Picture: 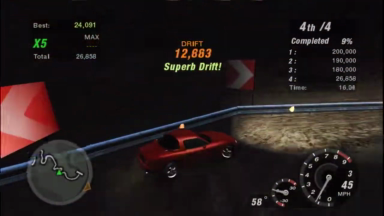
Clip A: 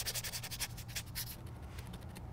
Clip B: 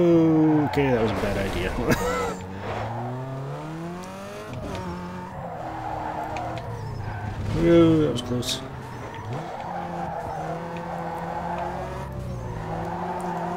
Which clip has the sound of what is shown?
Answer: B